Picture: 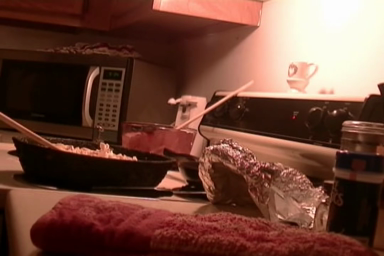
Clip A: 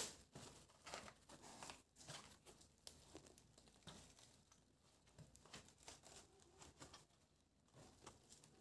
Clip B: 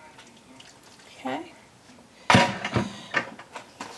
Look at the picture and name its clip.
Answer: B